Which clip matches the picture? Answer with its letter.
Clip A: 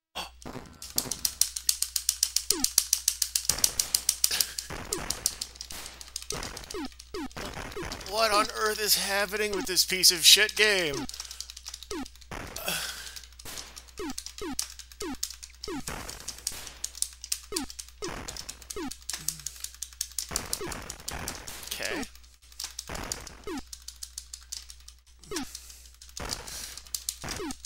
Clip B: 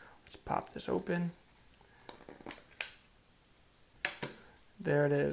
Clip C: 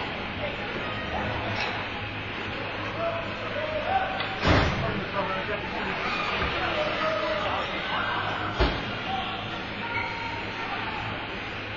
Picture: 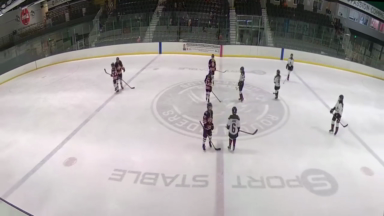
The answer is C